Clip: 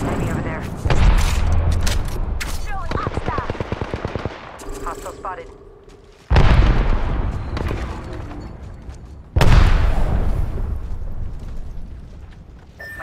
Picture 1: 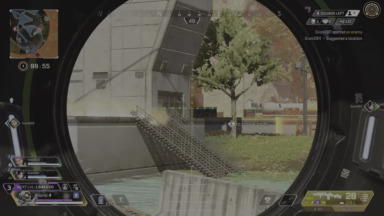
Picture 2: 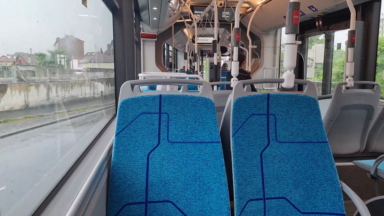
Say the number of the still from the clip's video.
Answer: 1